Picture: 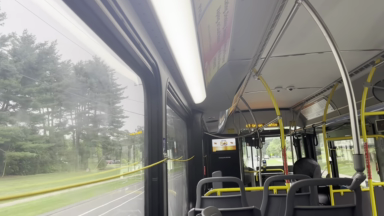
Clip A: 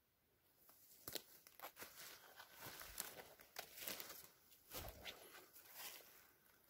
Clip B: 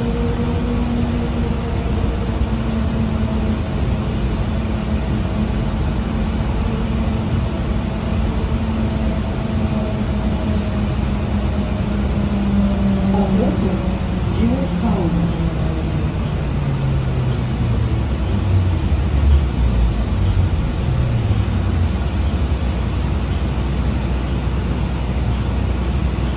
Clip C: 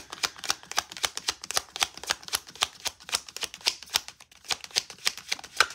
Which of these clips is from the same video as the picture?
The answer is B